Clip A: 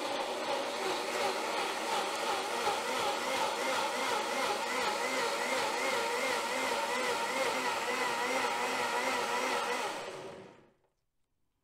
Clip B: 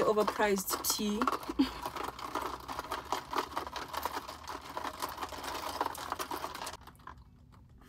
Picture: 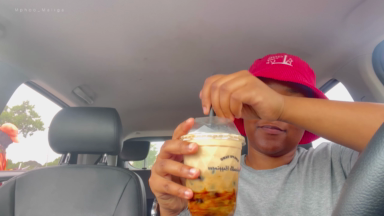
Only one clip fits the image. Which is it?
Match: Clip B